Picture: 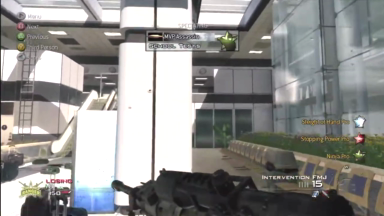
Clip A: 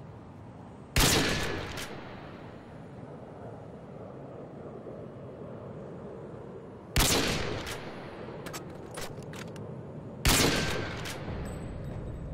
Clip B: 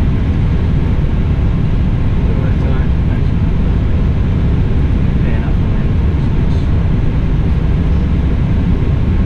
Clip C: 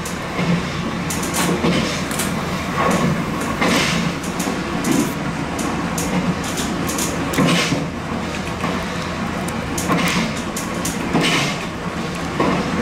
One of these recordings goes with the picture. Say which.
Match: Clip A